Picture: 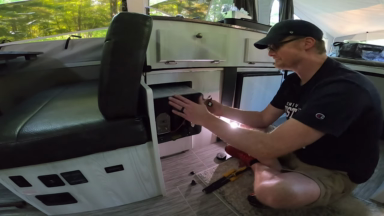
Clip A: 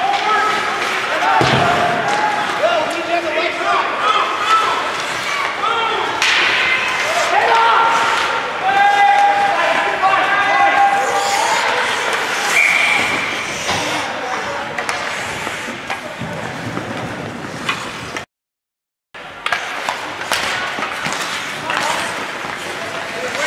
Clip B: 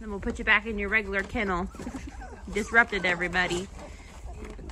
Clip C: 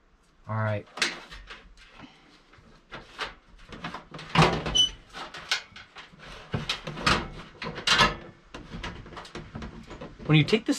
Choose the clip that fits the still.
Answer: C